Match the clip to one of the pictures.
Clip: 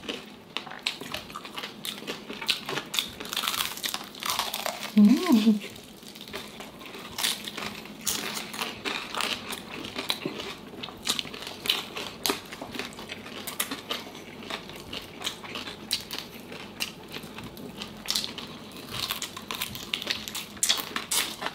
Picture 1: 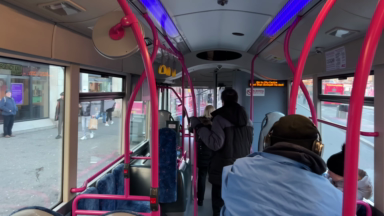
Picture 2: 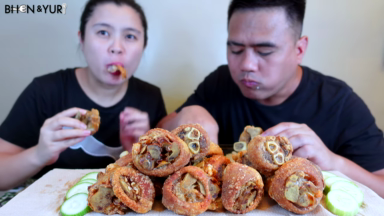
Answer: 2